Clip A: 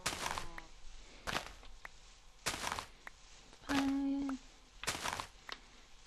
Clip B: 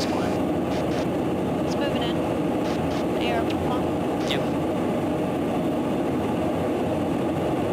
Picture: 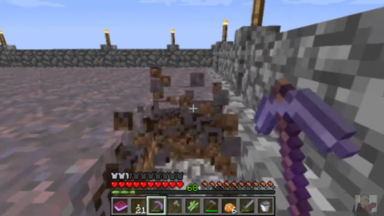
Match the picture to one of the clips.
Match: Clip A